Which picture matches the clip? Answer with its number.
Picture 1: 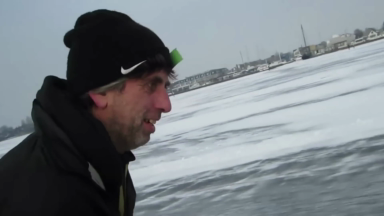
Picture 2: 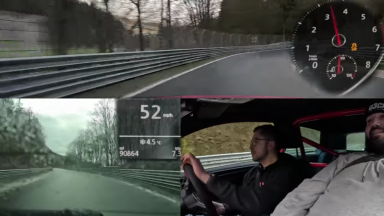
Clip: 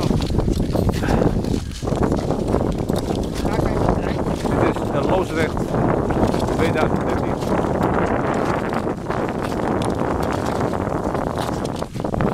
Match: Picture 1